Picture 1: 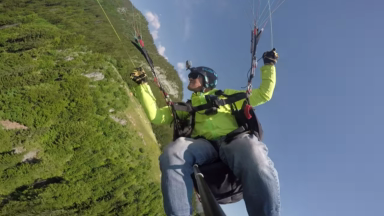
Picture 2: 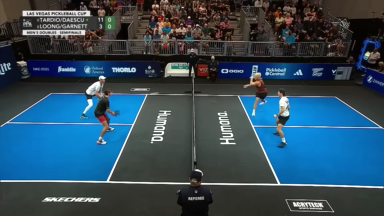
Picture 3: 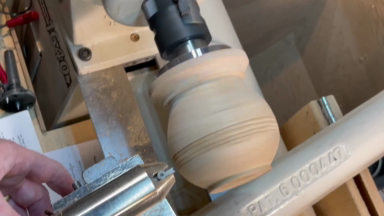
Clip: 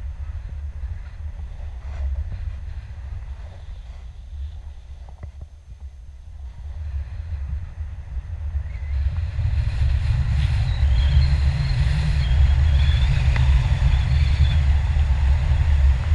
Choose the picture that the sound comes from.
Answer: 1